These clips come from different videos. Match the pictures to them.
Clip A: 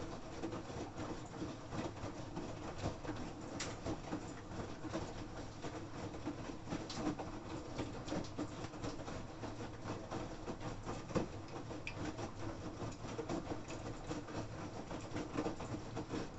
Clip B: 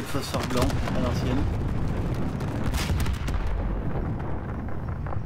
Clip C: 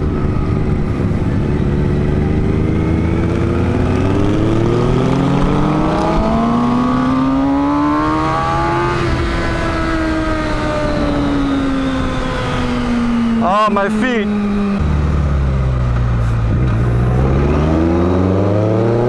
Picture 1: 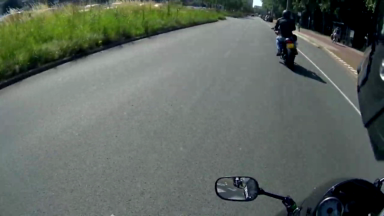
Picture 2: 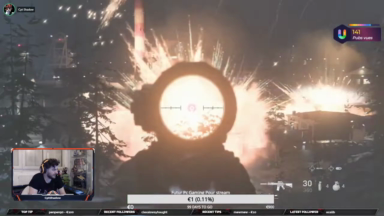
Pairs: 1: C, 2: B